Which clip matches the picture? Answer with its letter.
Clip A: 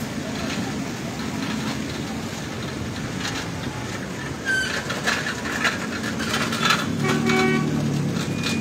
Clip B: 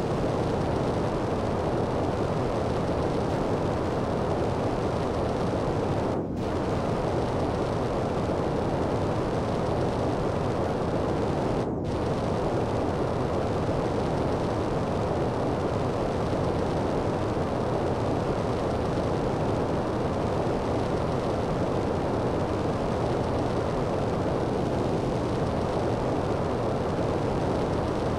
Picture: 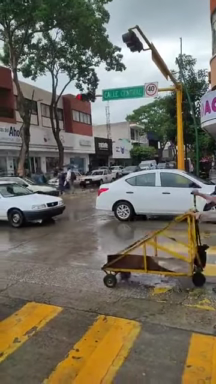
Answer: A